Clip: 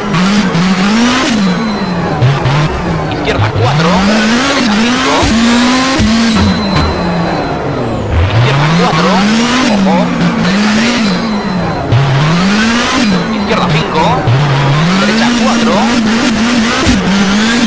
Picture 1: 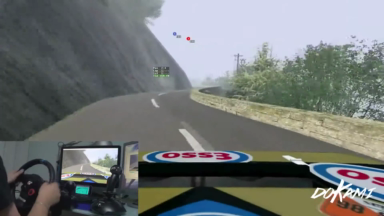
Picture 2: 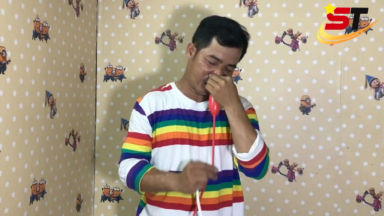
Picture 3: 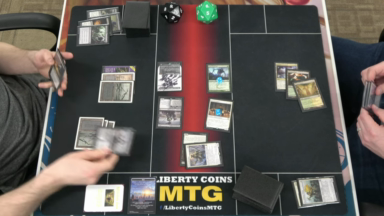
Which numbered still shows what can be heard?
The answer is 1